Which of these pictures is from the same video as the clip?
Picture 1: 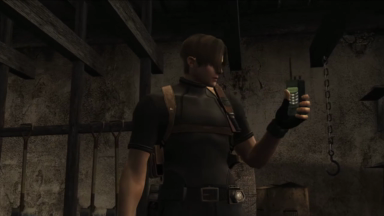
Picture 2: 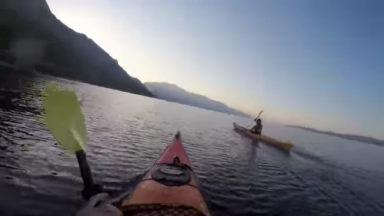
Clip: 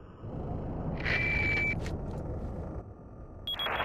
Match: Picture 1